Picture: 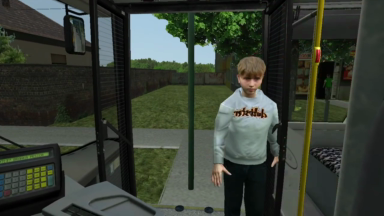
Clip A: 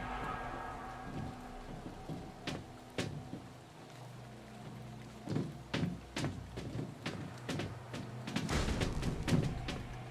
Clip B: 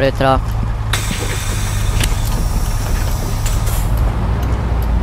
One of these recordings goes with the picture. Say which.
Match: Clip B